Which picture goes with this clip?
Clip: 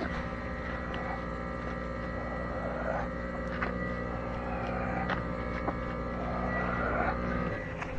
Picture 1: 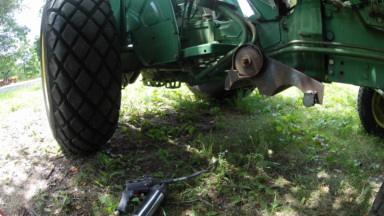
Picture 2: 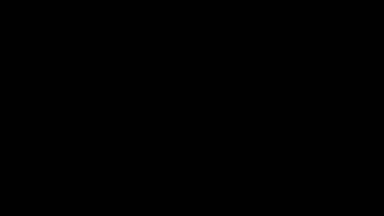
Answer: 1